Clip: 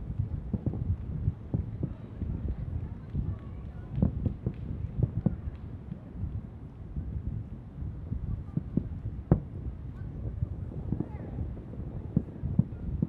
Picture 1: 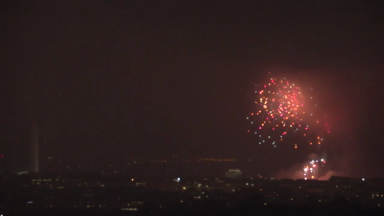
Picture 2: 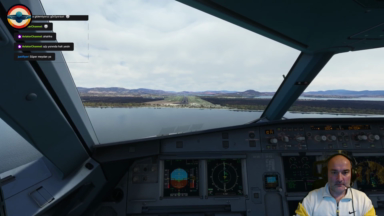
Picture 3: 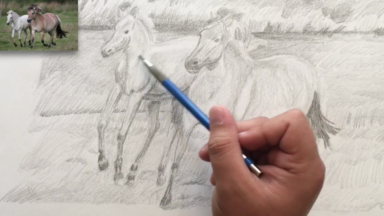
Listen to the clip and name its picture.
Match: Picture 1